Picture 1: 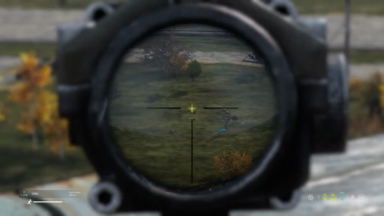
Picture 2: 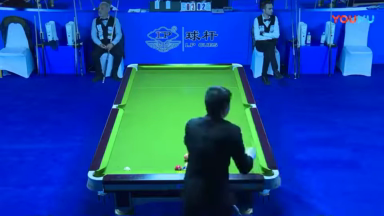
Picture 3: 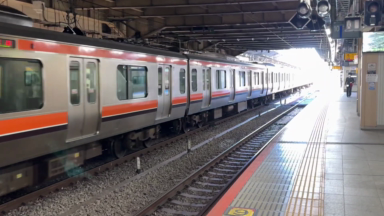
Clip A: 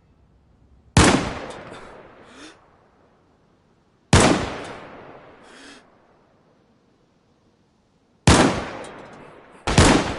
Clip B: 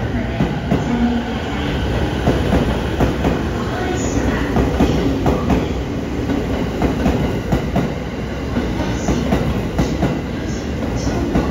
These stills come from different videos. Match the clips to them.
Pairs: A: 1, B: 3